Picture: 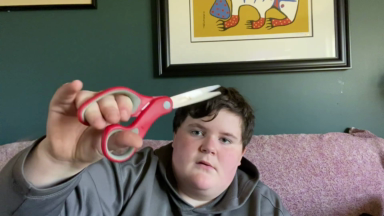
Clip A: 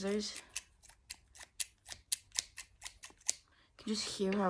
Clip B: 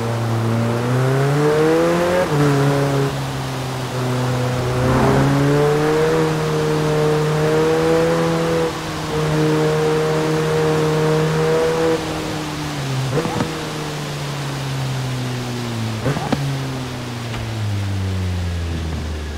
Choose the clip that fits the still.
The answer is A